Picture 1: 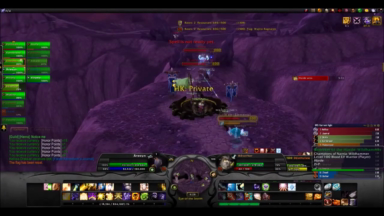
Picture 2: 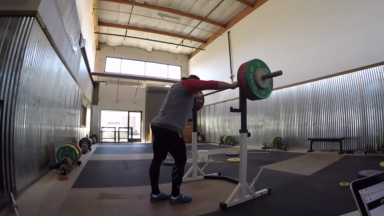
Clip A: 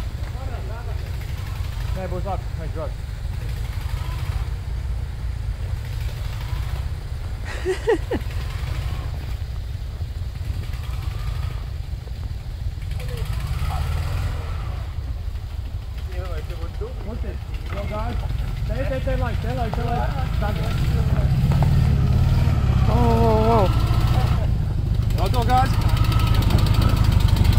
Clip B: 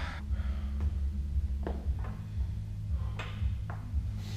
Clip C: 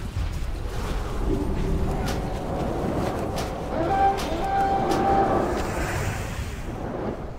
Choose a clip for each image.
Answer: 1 C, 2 B